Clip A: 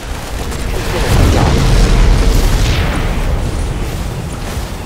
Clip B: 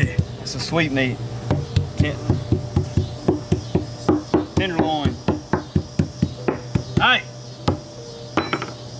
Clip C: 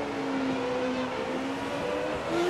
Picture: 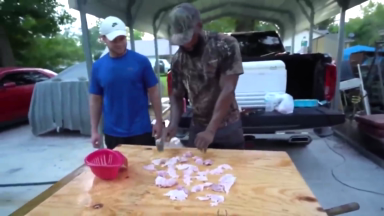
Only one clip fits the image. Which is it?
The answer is B